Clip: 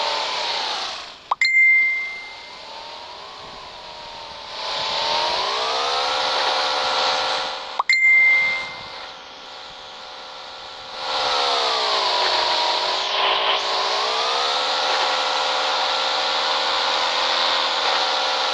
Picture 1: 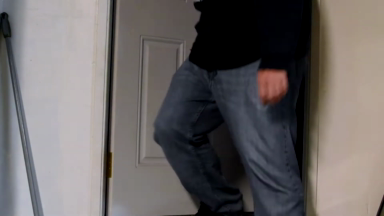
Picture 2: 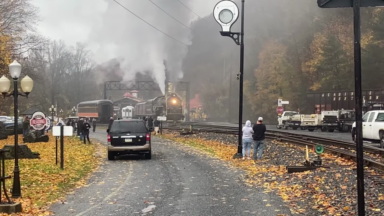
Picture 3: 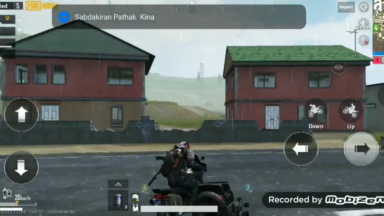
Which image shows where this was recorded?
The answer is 3